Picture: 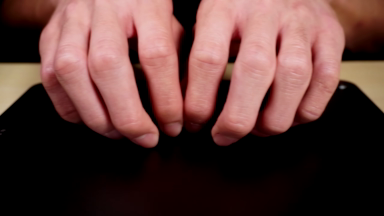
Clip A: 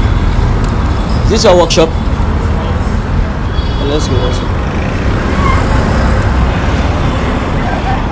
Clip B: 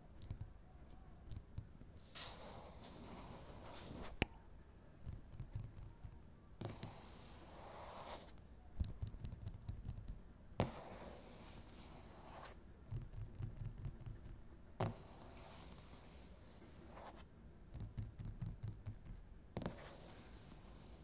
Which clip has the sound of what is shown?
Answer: B